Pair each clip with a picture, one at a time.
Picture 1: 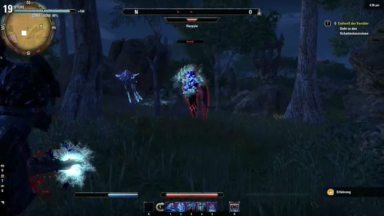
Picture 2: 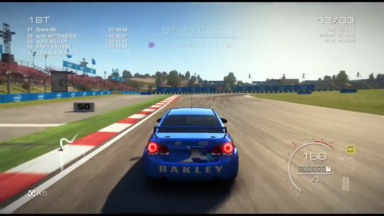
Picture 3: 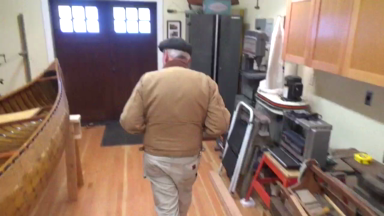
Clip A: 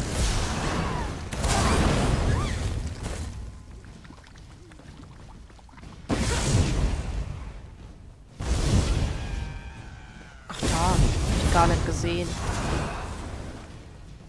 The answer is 1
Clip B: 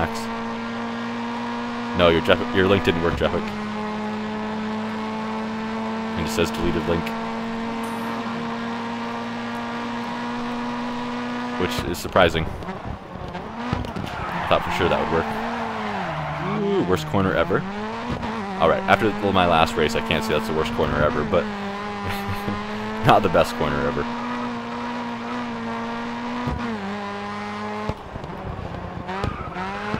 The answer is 2